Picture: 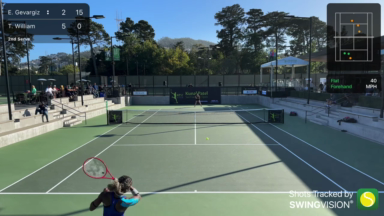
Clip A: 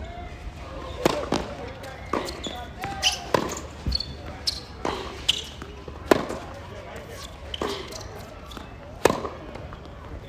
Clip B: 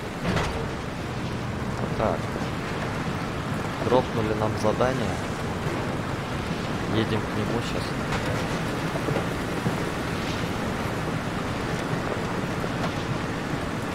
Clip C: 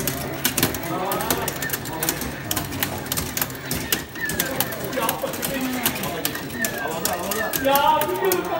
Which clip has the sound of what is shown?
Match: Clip A